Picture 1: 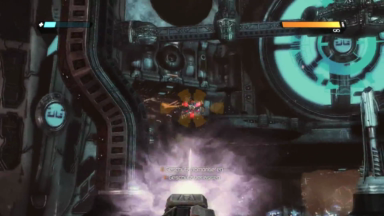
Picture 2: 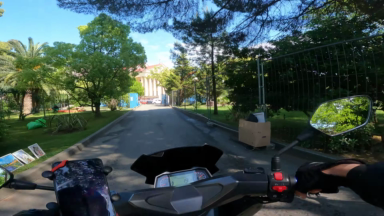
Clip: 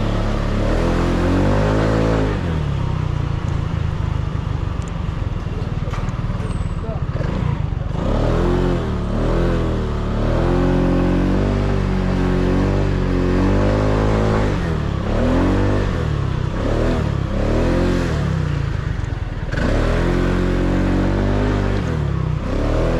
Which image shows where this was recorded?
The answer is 2